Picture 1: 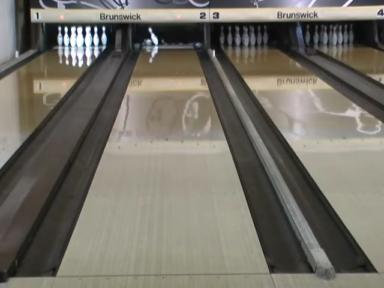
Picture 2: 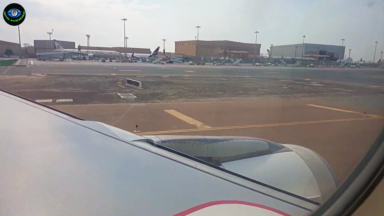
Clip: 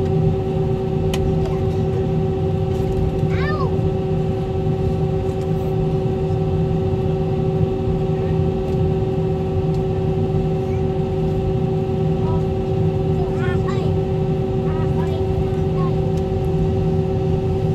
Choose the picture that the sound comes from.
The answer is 2